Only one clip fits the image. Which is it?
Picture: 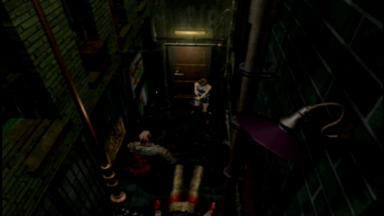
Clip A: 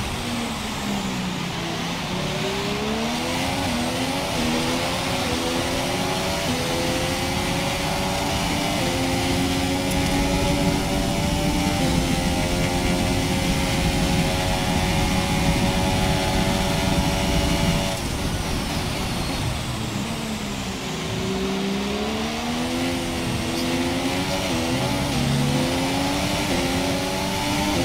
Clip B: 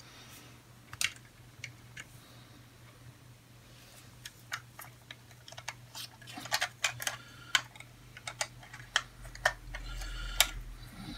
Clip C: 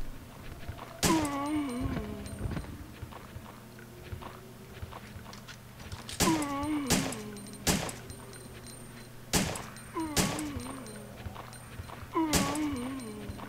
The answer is C